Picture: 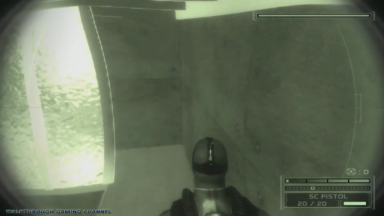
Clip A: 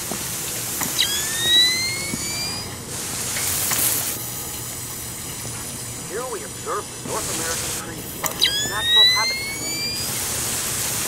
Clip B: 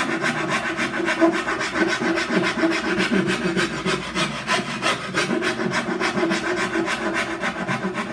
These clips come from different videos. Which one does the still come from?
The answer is A